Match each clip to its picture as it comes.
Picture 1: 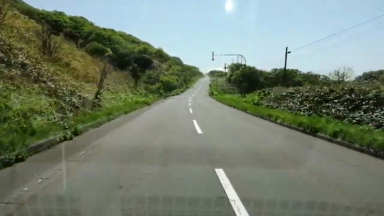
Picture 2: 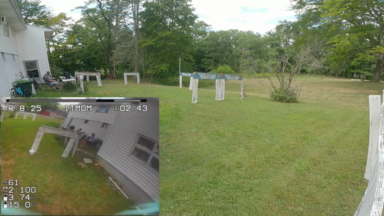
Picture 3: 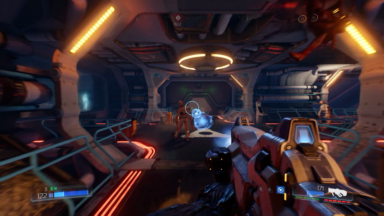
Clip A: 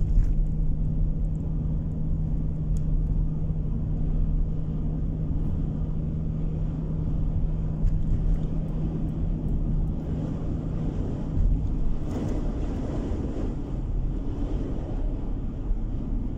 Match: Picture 1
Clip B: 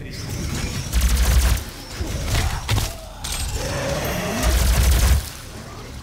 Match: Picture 3